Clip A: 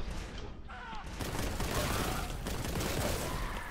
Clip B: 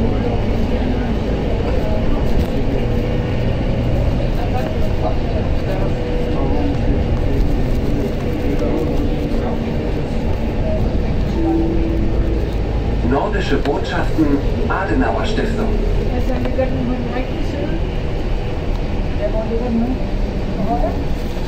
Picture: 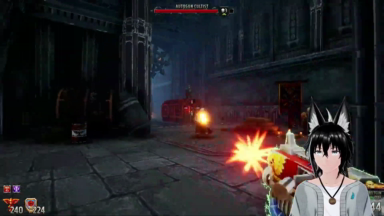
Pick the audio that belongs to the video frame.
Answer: A